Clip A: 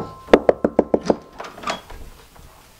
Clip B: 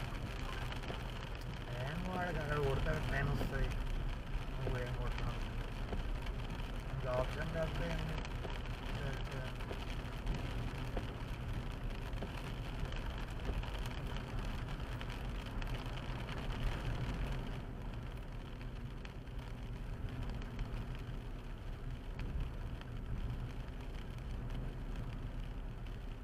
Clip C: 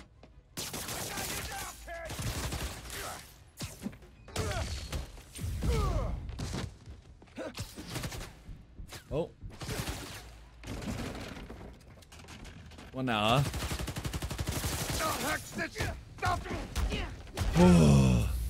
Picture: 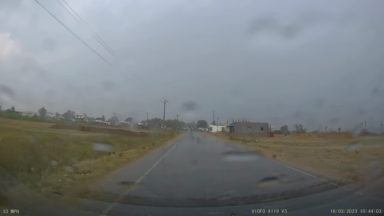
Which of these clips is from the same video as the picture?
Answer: B